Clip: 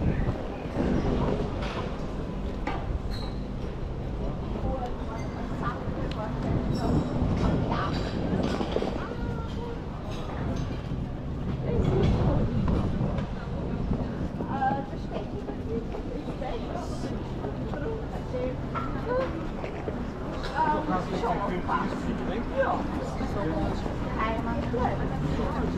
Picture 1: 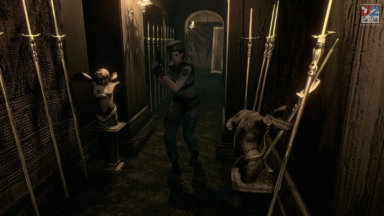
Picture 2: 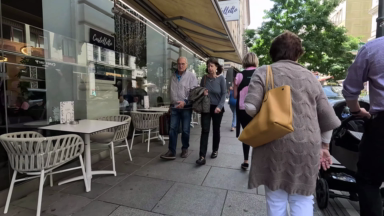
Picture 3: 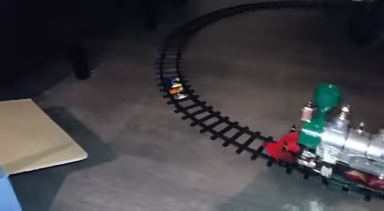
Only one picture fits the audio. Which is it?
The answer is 2